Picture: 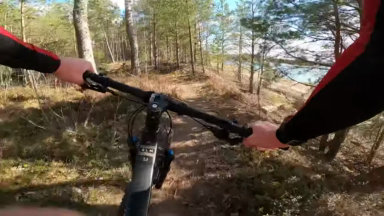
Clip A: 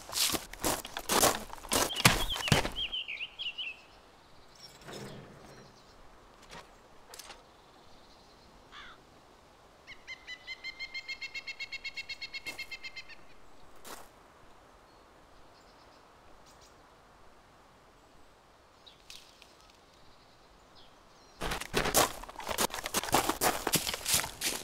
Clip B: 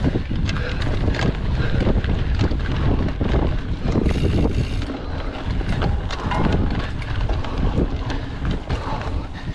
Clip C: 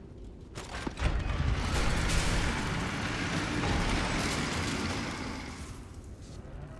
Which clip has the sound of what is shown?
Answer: B